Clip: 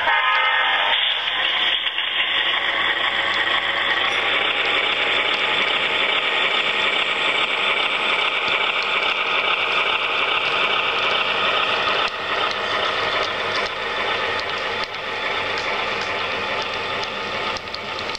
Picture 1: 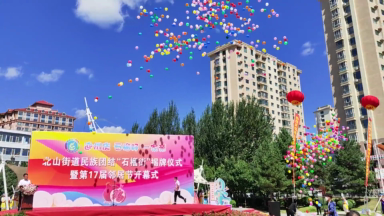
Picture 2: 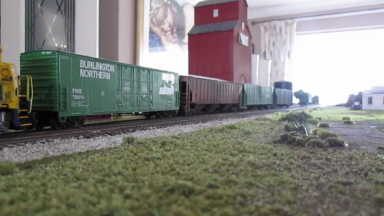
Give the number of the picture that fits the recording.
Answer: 2